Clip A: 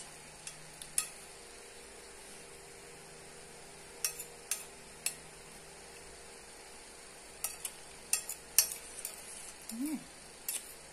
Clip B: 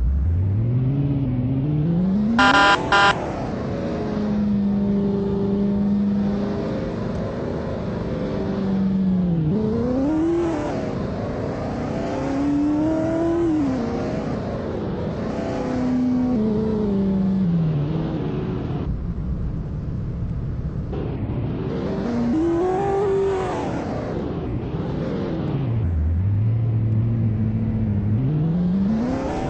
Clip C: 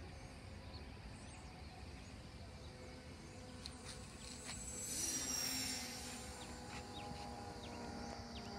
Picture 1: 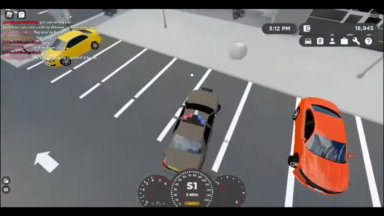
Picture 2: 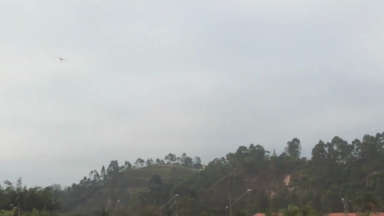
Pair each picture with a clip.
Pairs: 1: B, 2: C